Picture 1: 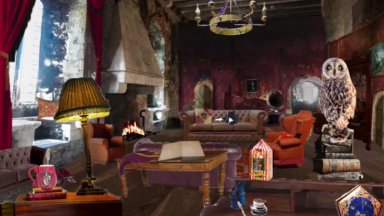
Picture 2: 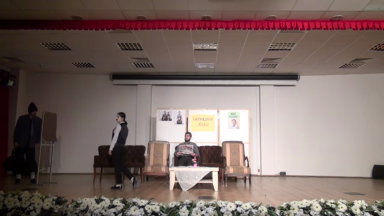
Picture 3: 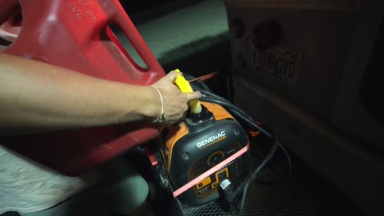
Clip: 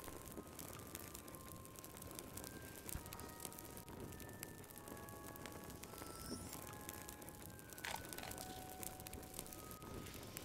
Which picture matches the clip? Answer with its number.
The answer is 1